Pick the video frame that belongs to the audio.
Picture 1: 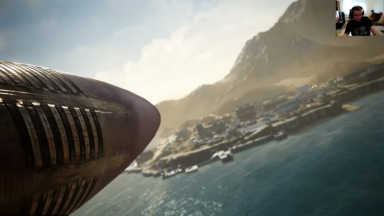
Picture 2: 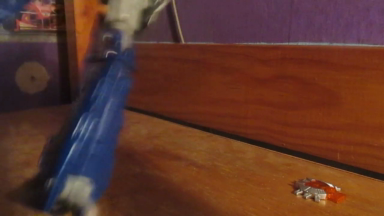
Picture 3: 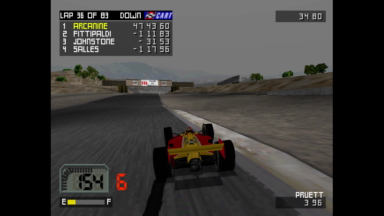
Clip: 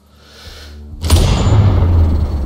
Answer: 1